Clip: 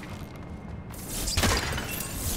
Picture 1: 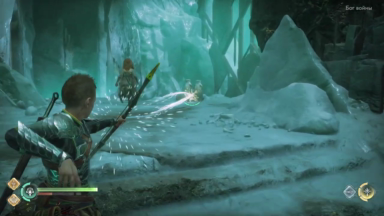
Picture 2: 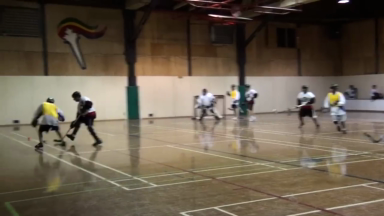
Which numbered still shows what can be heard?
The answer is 1